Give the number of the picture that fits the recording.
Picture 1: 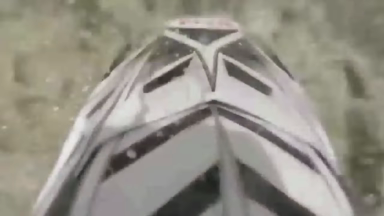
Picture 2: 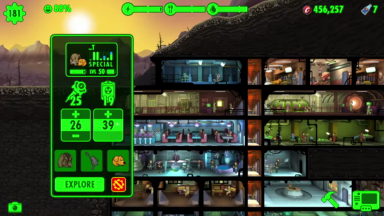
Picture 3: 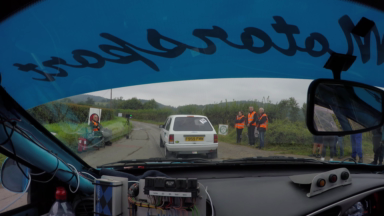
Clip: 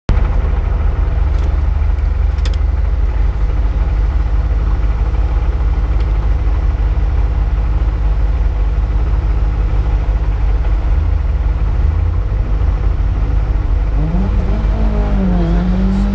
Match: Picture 3